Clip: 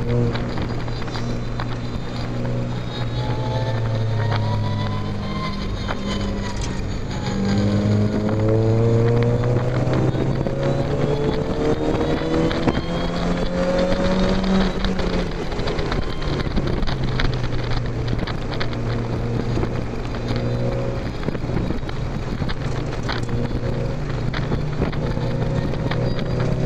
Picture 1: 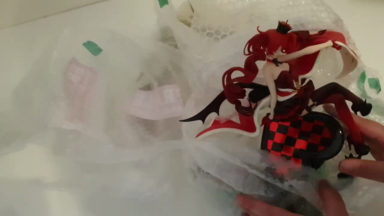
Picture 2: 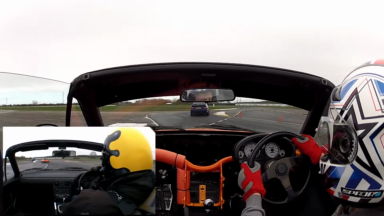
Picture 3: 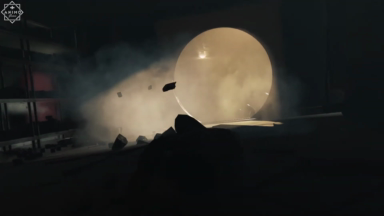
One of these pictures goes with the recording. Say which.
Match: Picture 2